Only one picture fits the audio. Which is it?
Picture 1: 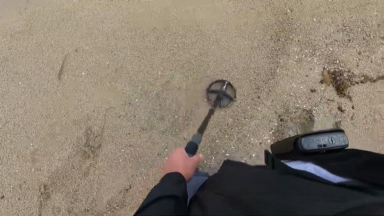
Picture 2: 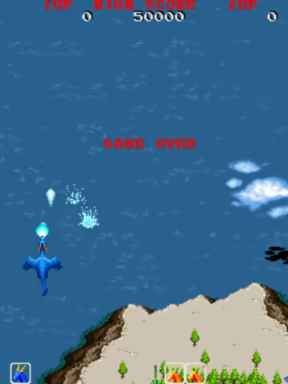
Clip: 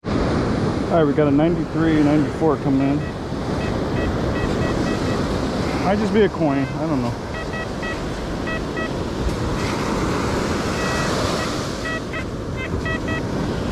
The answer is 1